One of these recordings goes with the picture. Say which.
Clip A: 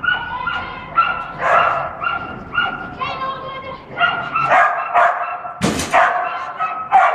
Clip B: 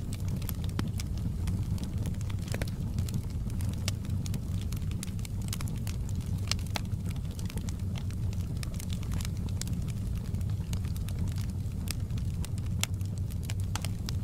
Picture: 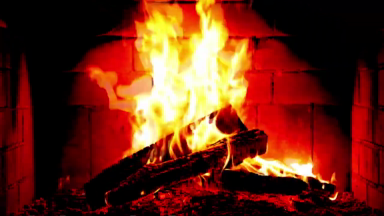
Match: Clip B